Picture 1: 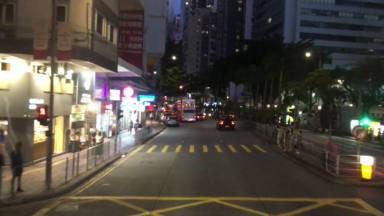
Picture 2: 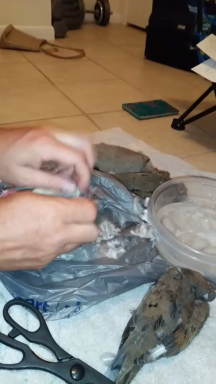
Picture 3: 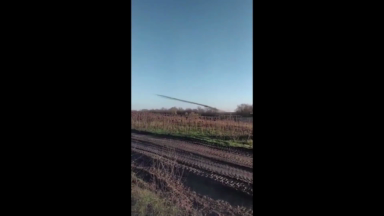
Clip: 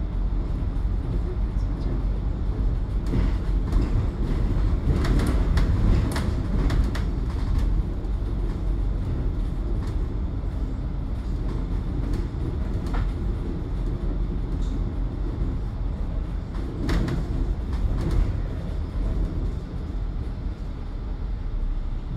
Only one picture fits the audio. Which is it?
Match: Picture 1